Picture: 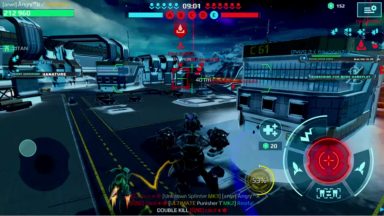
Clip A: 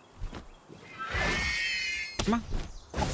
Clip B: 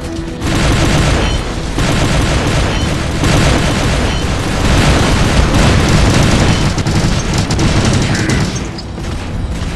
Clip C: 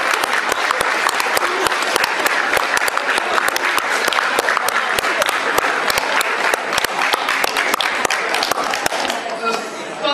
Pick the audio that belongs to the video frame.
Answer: B